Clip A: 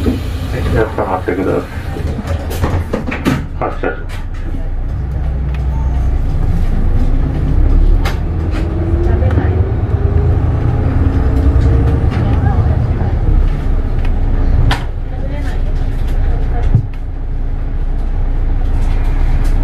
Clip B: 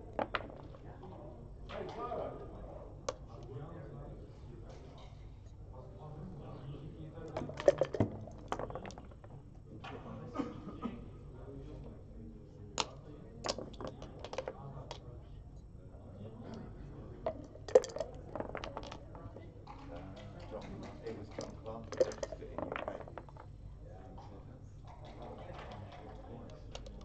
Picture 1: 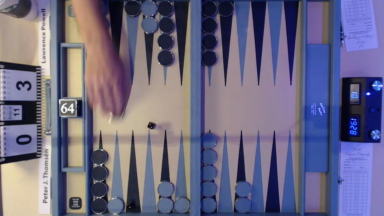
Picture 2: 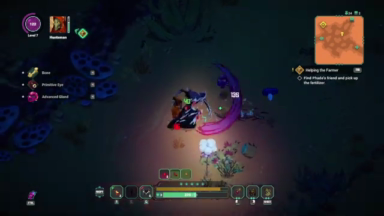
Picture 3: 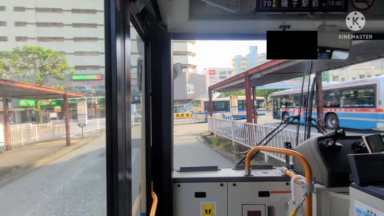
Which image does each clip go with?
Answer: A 3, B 1